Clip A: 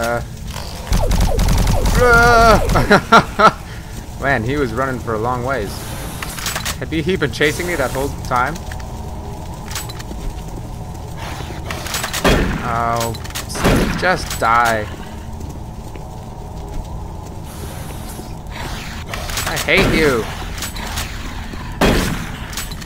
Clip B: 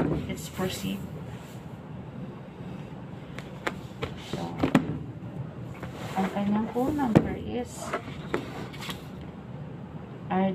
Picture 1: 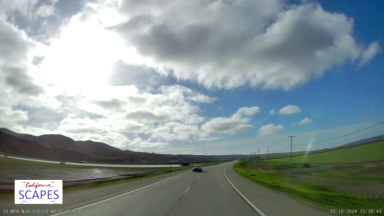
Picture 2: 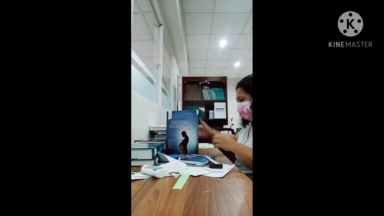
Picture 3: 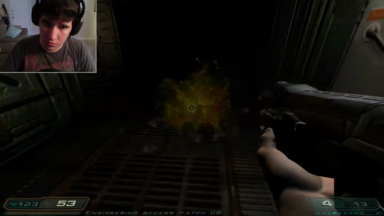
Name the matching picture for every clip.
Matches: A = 3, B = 2